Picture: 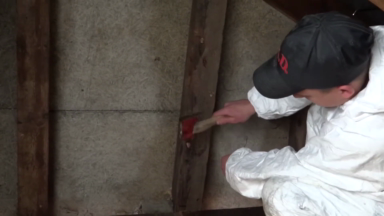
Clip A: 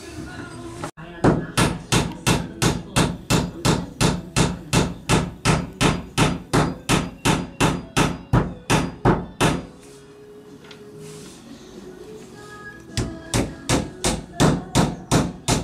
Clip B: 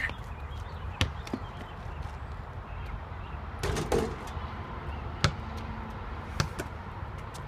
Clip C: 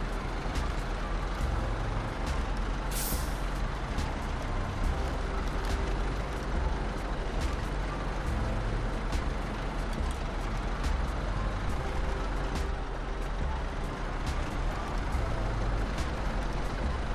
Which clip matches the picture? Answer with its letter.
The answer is A